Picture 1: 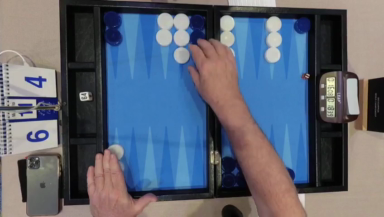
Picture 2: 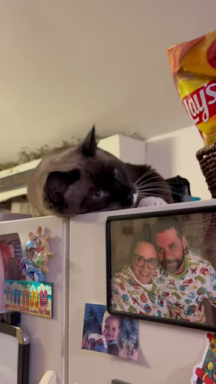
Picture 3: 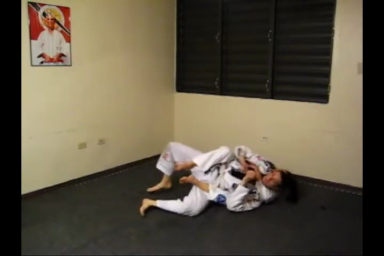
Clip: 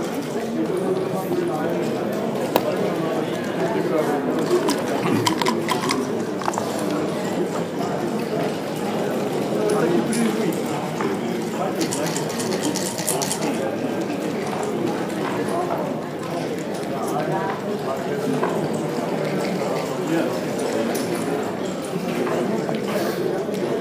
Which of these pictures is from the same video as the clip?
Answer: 1